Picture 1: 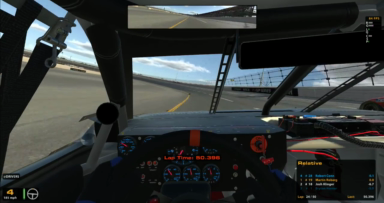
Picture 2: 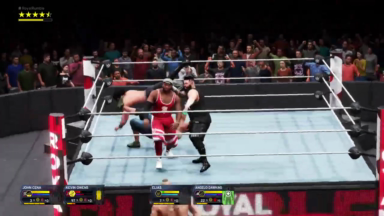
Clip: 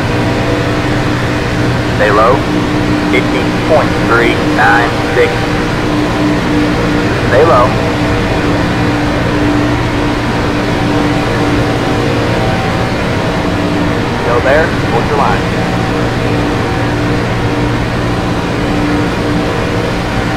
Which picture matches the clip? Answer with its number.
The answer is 1